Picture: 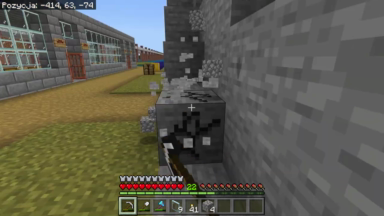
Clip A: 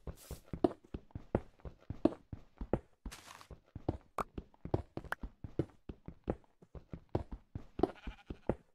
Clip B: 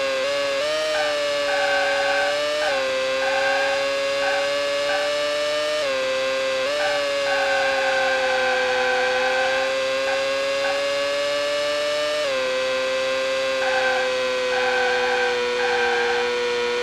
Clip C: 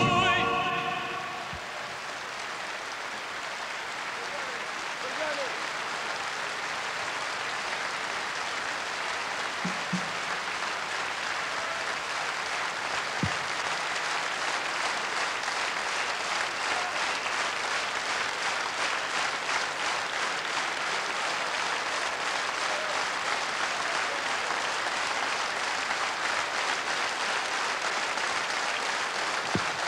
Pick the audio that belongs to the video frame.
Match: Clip A